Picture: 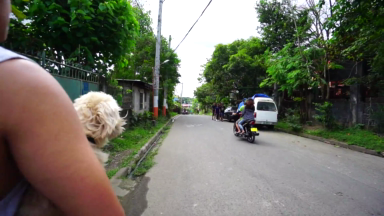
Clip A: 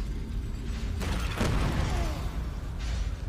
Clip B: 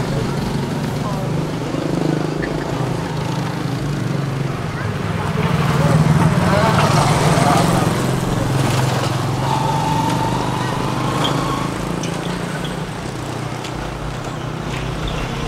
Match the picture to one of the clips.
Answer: B